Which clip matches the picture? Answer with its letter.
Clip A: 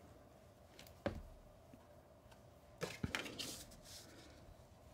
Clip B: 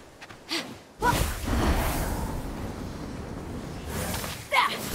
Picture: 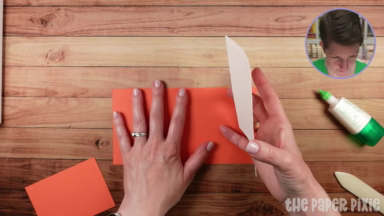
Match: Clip A